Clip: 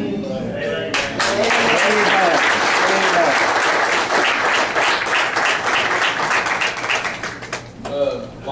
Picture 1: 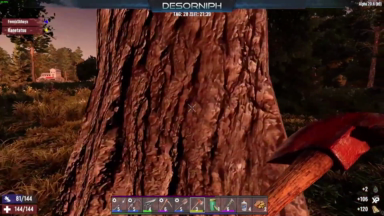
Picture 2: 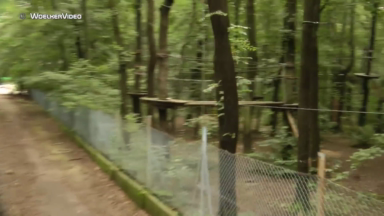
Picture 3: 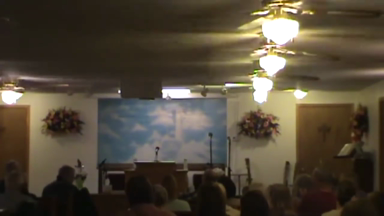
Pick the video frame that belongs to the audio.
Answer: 3